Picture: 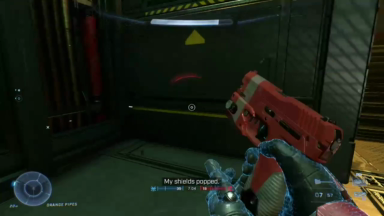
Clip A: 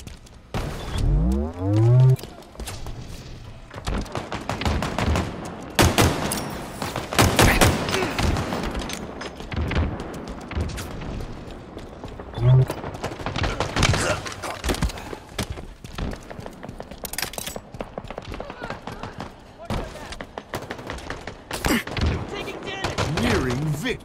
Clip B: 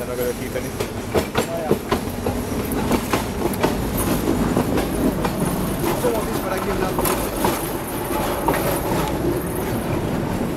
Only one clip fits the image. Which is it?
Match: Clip A